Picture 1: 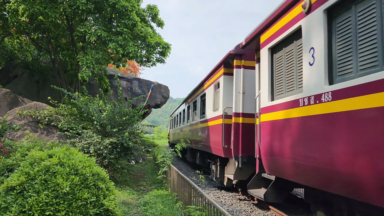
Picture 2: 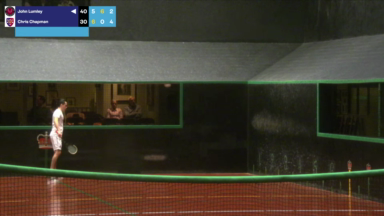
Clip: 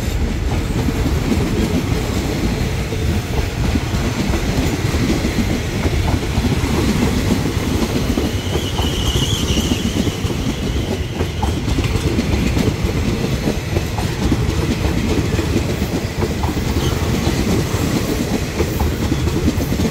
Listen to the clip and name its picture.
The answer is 1